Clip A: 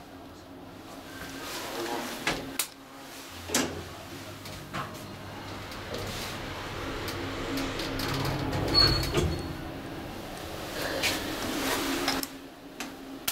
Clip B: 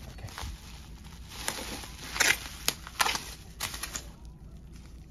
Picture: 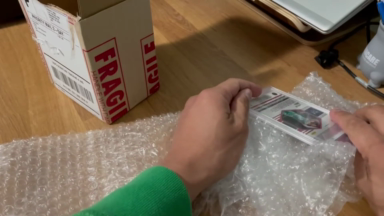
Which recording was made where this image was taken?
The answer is B